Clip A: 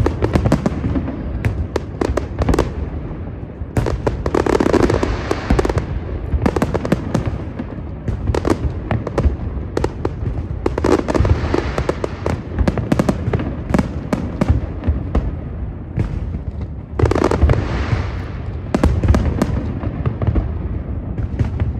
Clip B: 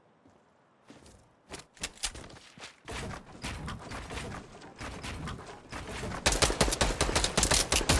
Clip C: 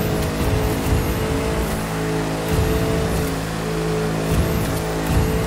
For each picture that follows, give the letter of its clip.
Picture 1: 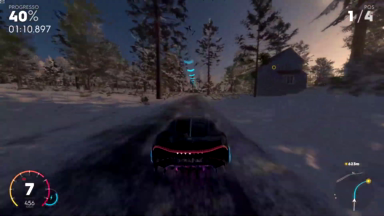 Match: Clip C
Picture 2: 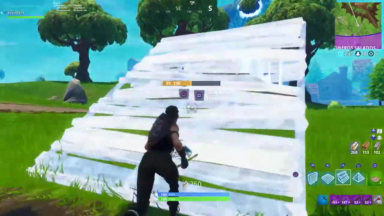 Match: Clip B